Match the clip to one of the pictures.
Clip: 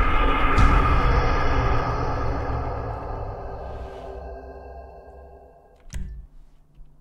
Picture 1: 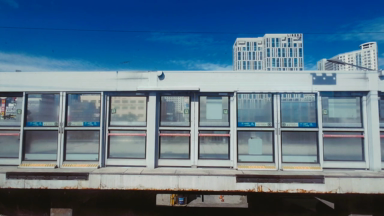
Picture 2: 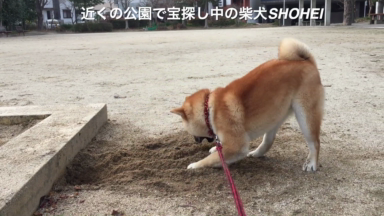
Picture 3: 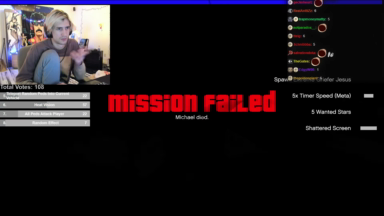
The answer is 3